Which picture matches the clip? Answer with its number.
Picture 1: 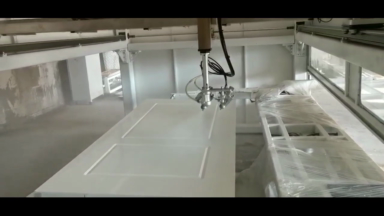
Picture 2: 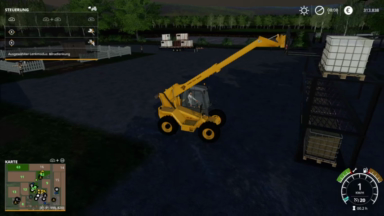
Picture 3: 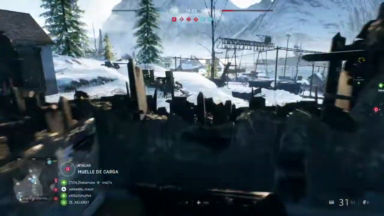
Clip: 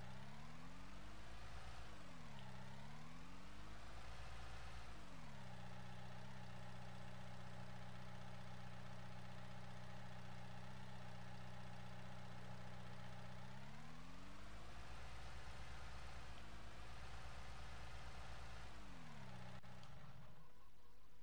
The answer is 2